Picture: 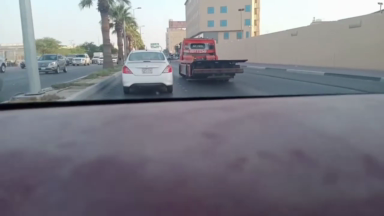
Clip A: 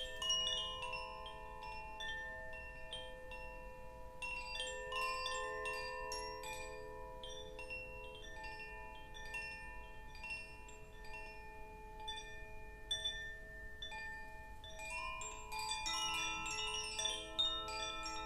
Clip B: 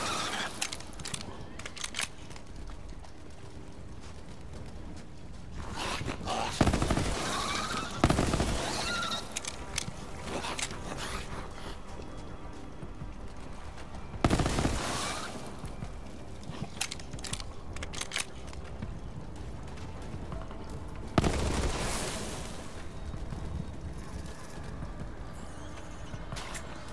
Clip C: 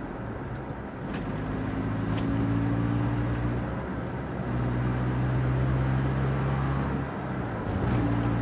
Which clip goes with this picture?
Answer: C